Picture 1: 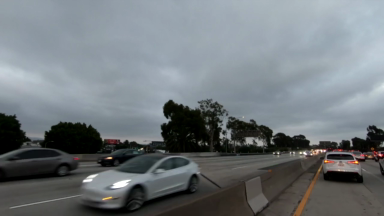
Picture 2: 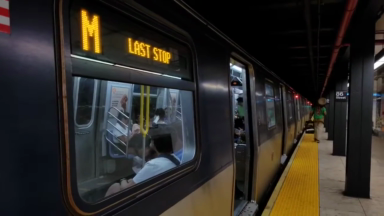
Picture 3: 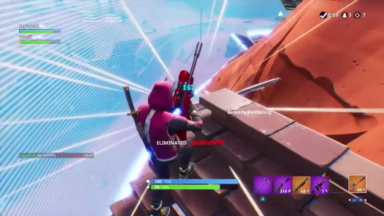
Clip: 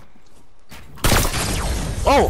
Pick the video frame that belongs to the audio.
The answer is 3